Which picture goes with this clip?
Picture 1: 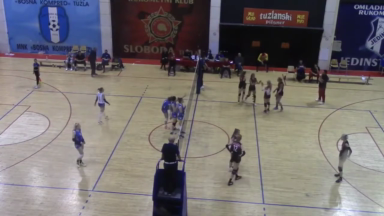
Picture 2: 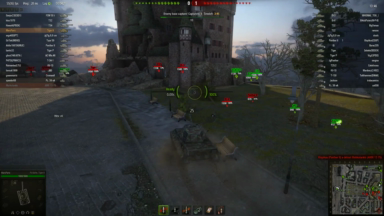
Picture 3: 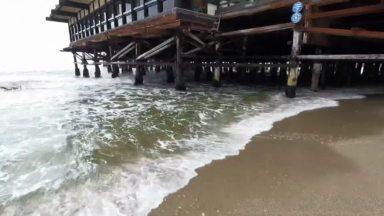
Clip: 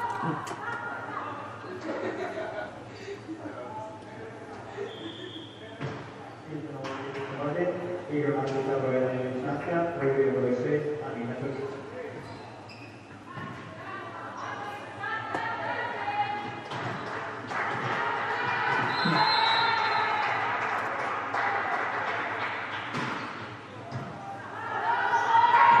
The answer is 1